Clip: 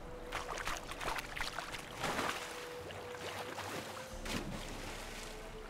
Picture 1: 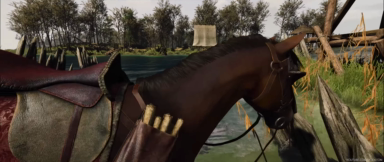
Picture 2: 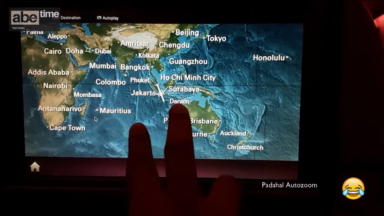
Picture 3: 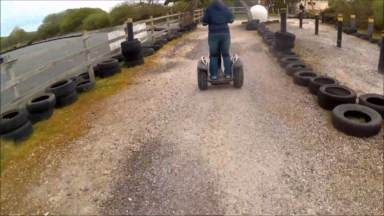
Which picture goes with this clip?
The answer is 1